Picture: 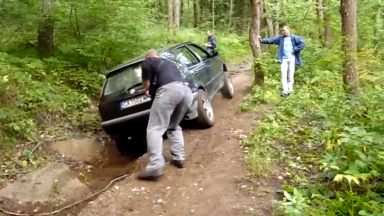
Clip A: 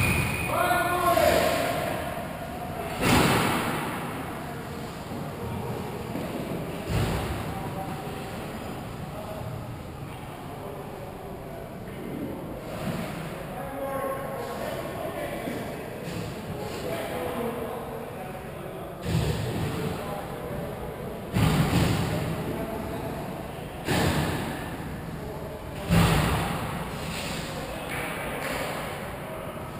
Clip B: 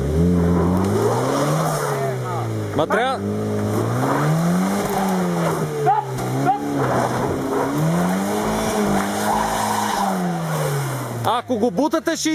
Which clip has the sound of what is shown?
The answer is B